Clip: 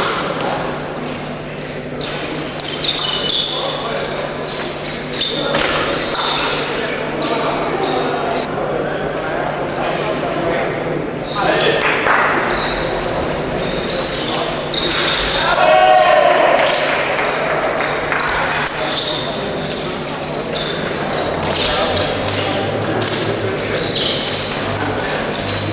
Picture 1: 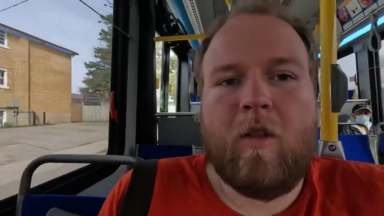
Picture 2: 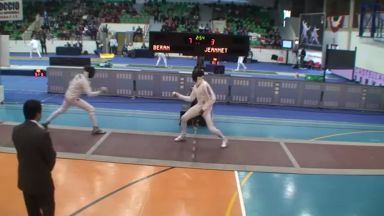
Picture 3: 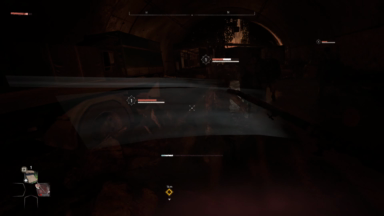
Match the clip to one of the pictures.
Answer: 2